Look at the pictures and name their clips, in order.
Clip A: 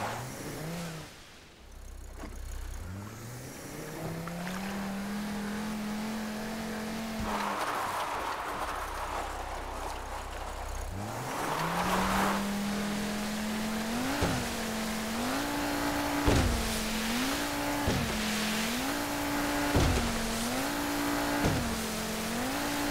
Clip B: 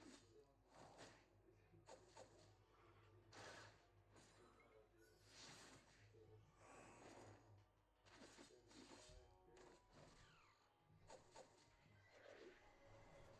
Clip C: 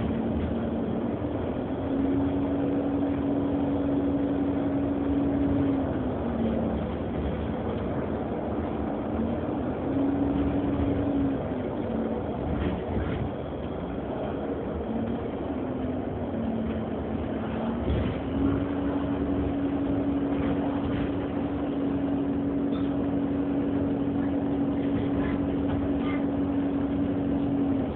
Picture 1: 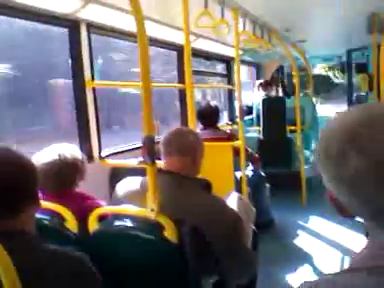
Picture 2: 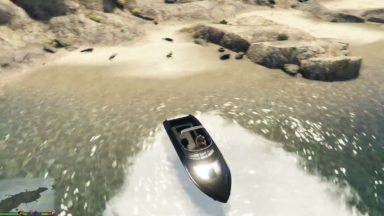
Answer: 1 C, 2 A